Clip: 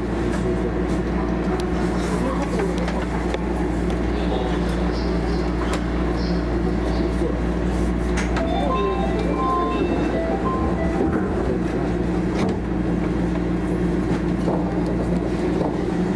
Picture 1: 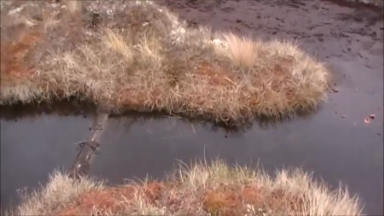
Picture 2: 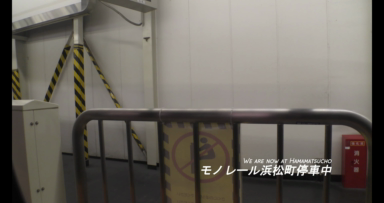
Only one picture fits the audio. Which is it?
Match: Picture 2